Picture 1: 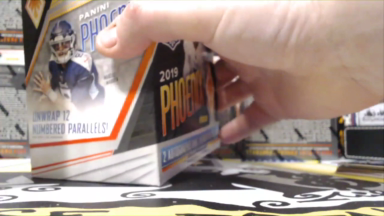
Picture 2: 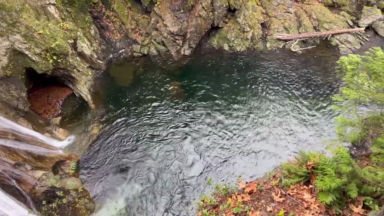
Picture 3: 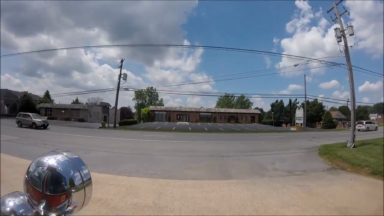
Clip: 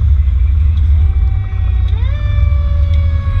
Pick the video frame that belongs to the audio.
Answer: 3